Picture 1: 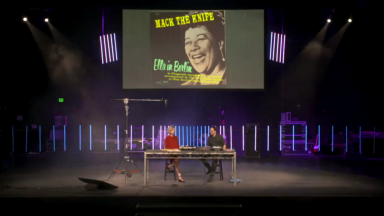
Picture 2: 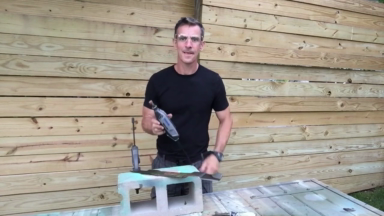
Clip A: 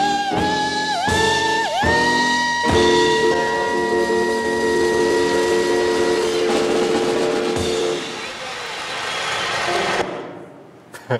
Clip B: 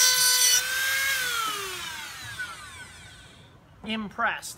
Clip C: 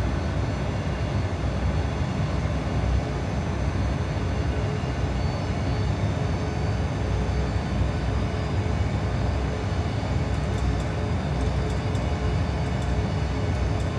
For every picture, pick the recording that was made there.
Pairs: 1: A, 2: B